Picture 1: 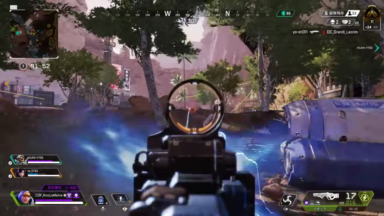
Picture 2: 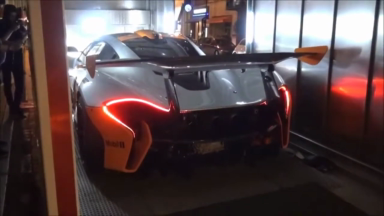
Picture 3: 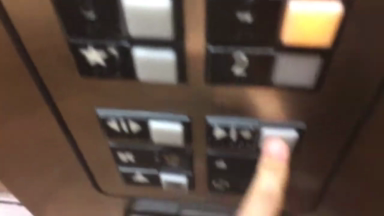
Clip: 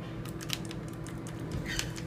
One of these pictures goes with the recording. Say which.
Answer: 3